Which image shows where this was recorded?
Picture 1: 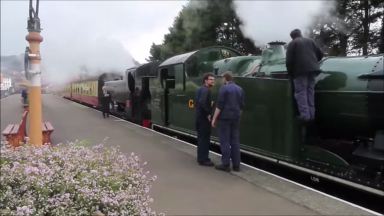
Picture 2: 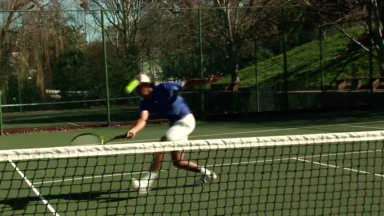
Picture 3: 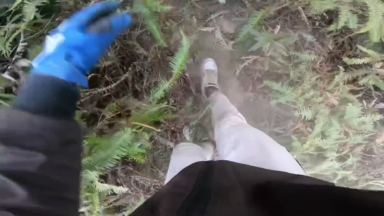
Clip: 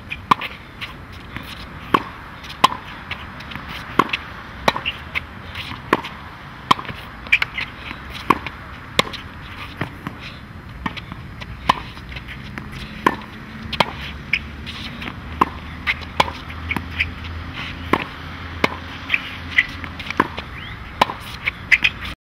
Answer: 2